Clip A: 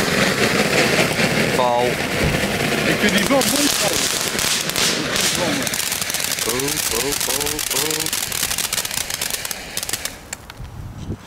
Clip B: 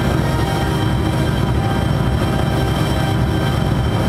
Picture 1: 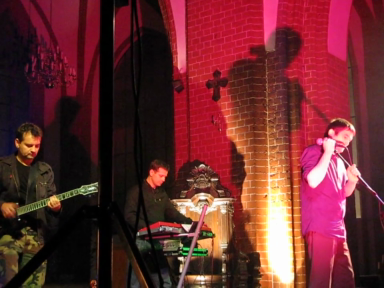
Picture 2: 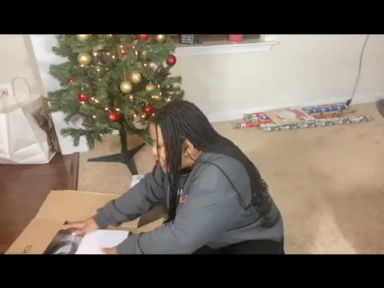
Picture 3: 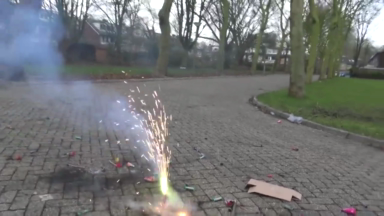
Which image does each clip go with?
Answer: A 3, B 1